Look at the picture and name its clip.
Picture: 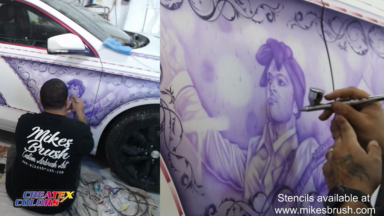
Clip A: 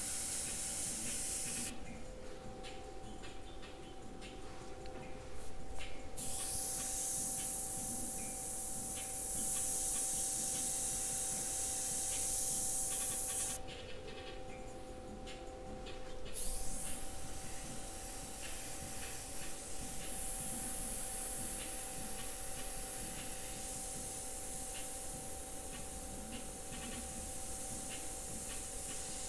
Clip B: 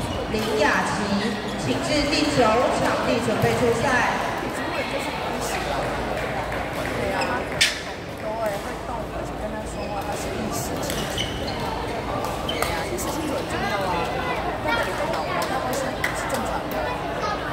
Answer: A